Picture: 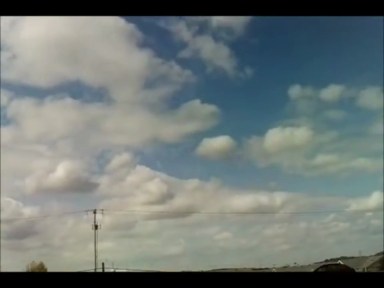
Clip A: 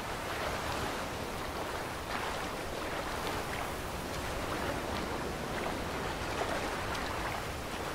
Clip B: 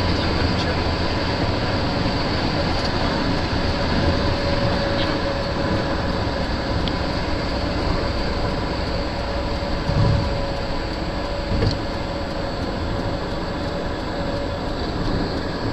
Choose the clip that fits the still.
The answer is B